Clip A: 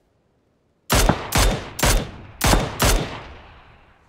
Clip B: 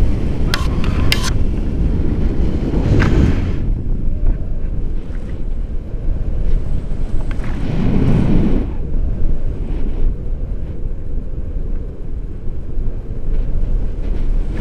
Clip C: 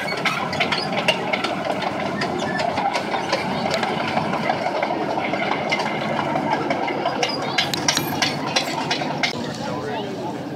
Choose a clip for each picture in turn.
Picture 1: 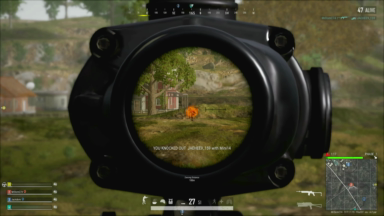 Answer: A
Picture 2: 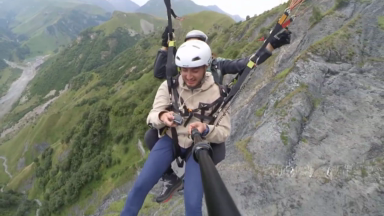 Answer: B